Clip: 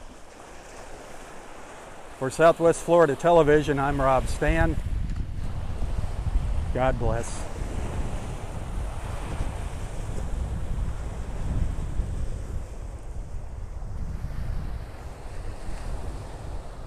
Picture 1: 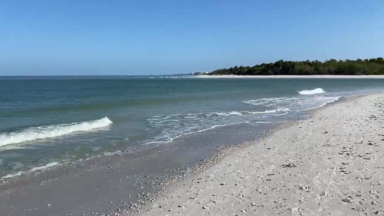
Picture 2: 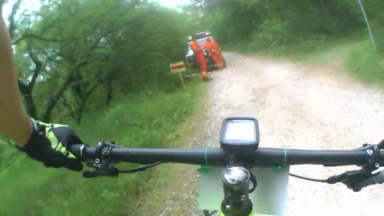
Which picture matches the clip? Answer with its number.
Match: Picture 1